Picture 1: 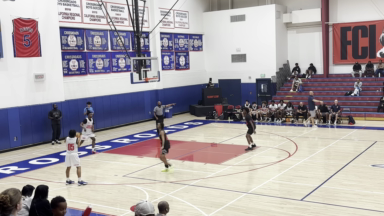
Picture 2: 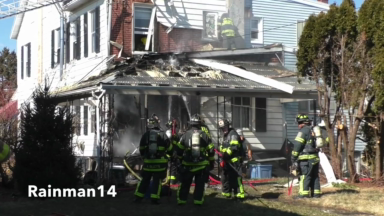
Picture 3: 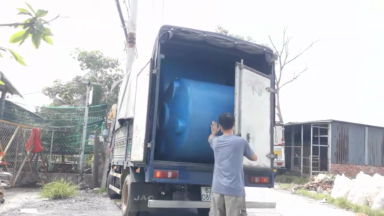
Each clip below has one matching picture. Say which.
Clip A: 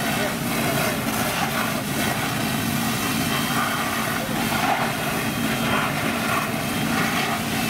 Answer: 2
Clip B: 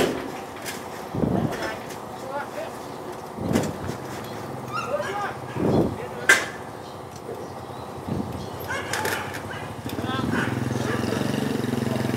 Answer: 3